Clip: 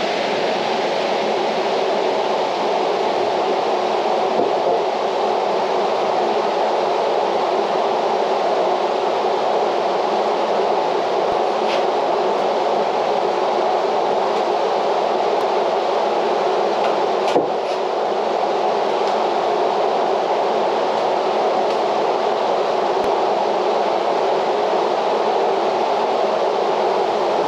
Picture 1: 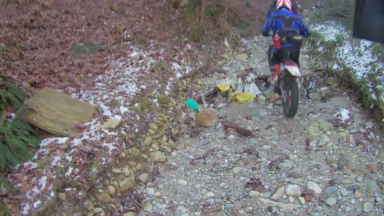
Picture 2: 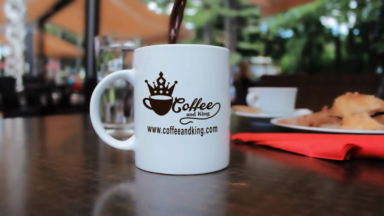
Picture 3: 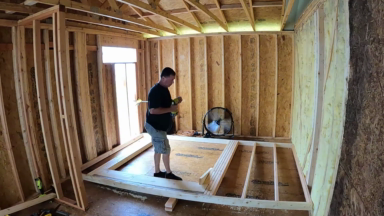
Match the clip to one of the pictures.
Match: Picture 3